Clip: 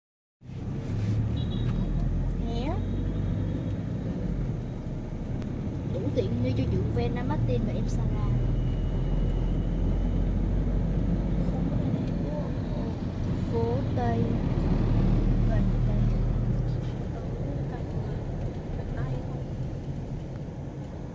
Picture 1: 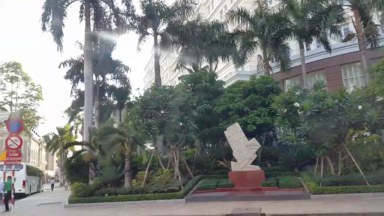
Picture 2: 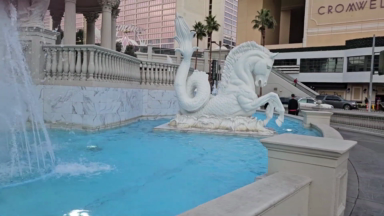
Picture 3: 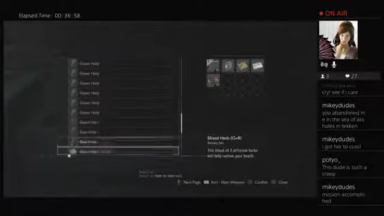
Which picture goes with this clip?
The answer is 1